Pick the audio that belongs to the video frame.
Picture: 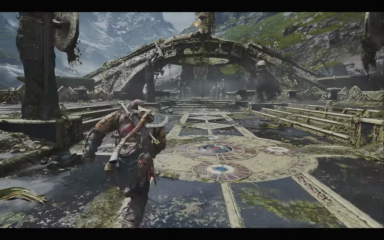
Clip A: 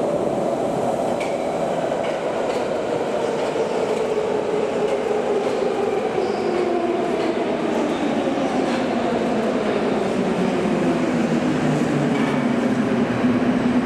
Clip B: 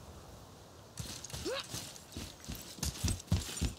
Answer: B